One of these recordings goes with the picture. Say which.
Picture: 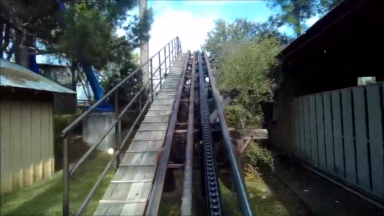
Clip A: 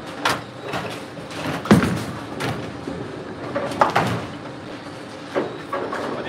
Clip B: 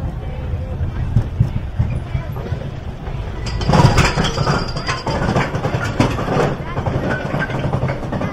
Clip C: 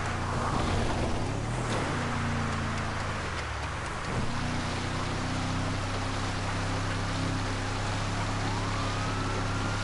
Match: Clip B